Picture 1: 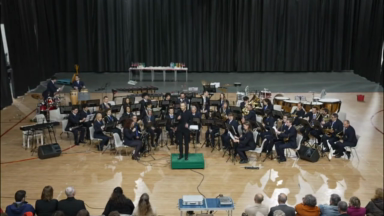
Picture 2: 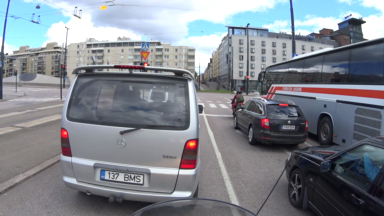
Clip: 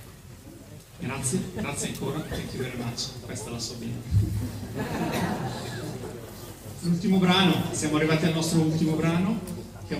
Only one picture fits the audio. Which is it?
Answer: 1